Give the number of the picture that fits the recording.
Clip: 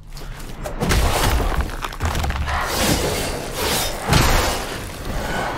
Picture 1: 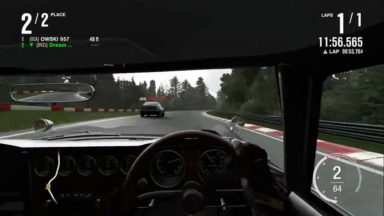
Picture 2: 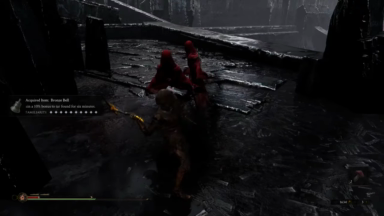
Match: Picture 2